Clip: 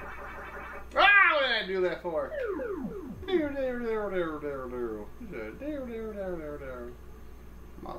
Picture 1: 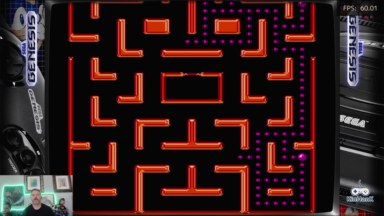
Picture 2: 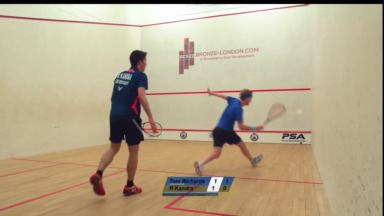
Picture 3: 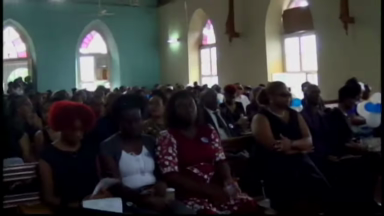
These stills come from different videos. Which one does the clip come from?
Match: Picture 1